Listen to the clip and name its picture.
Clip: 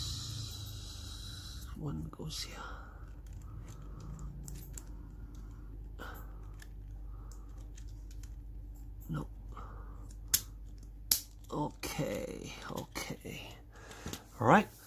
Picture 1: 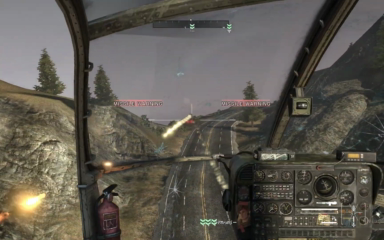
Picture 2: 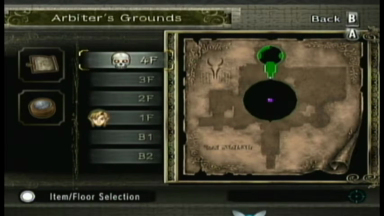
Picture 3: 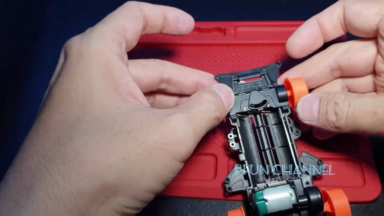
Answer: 3